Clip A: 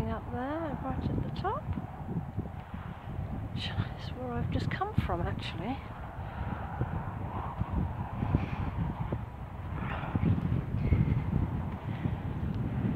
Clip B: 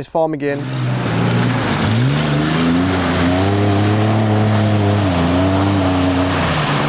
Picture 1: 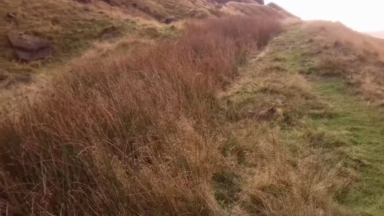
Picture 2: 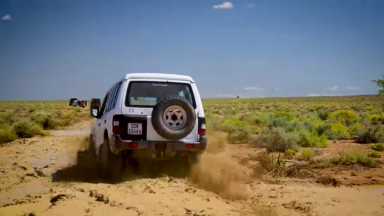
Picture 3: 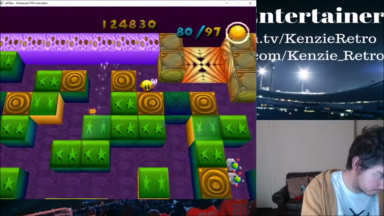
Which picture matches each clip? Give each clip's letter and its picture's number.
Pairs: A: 1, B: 2